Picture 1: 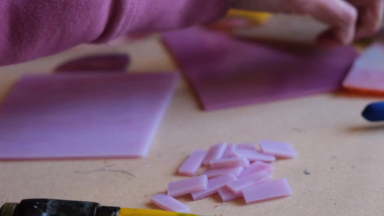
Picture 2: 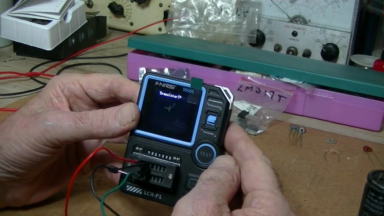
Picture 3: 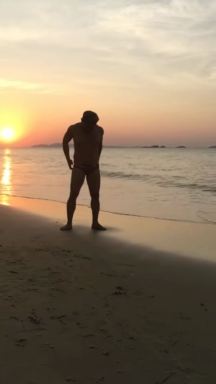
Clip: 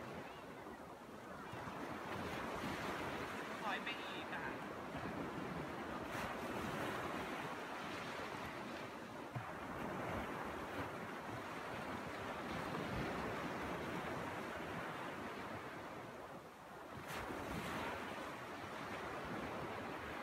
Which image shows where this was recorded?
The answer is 3